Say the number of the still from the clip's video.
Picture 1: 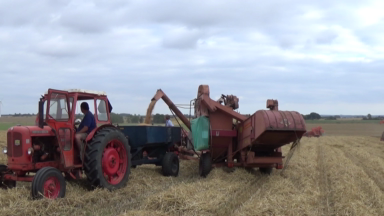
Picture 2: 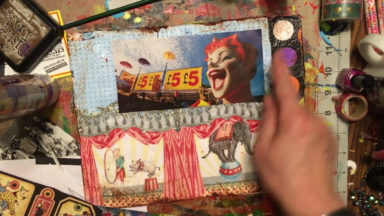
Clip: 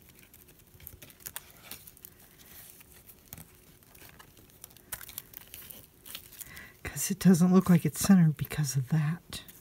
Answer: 2